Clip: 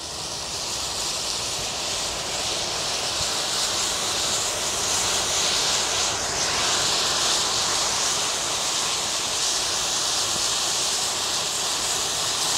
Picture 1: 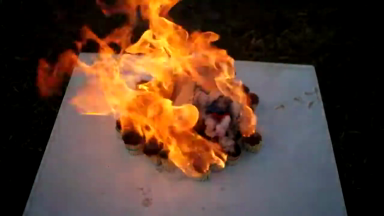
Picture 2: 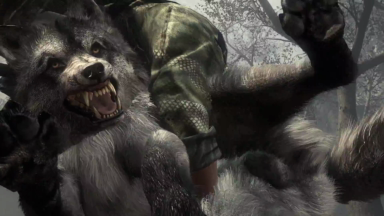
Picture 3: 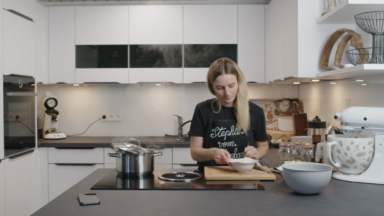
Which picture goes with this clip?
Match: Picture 1